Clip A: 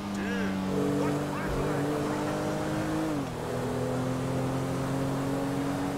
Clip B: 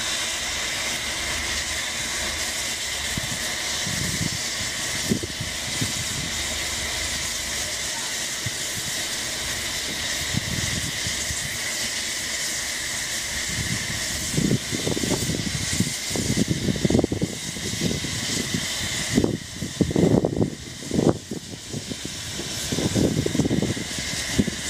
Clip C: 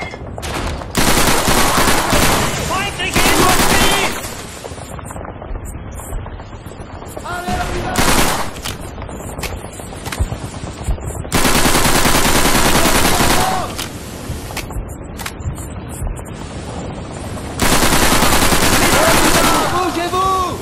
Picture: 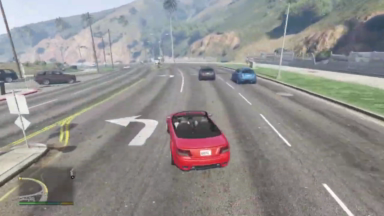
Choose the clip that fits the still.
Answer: A